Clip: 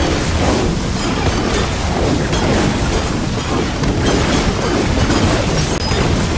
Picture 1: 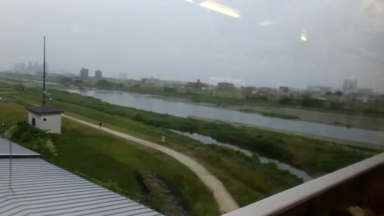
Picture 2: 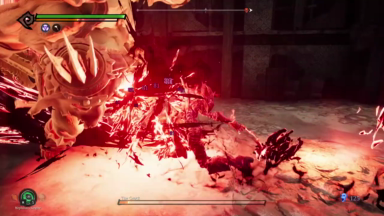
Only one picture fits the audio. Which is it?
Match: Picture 2